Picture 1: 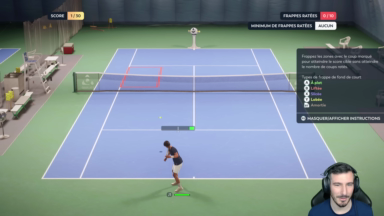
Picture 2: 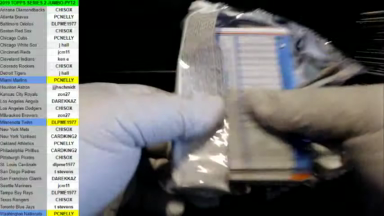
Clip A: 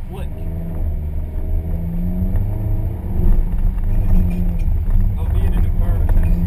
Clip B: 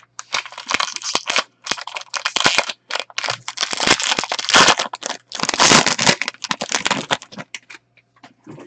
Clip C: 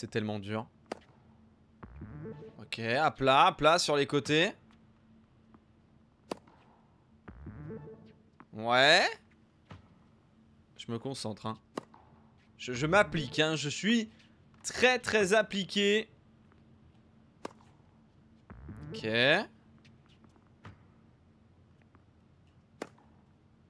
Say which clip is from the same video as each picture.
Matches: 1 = C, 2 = B